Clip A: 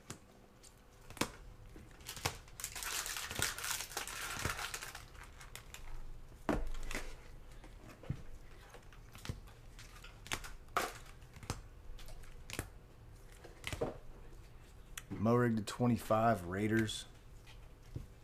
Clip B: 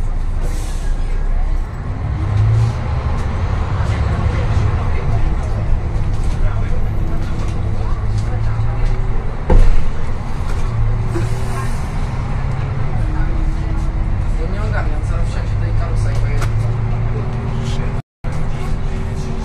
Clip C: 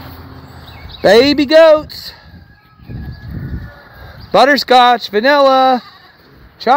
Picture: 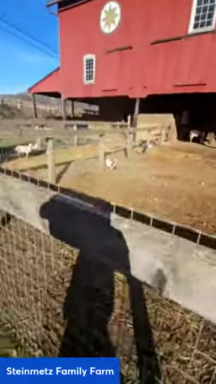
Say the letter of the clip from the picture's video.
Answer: C